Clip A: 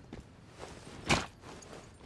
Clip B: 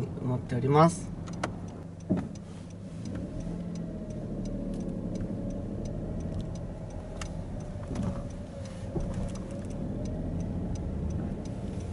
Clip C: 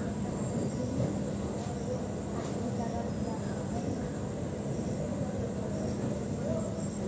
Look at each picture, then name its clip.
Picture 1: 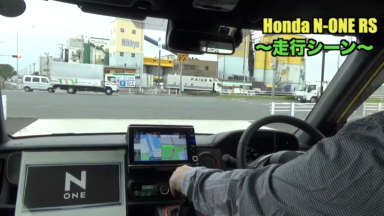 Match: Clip B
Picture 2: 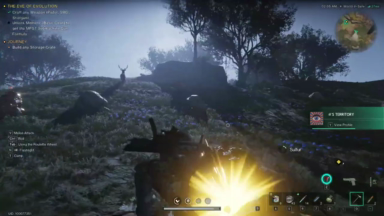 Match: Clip A